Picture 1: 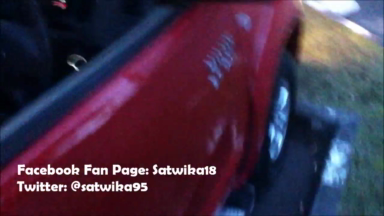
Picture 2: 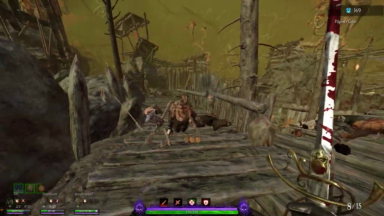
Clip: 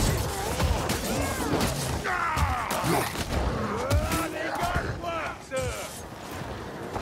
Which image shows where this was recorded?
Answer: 2